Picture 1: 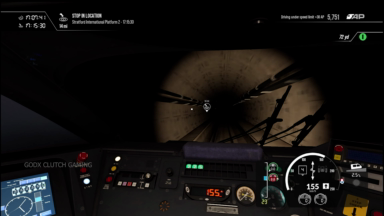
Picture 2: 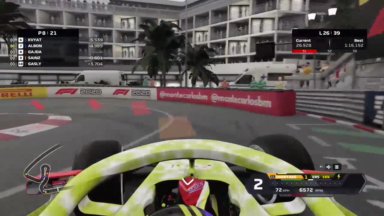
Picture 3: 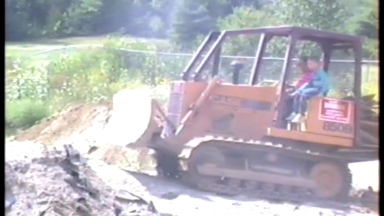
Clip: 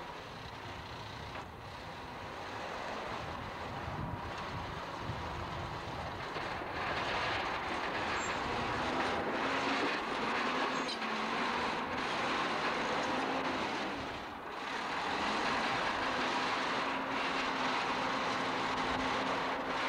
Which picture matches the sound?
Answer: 3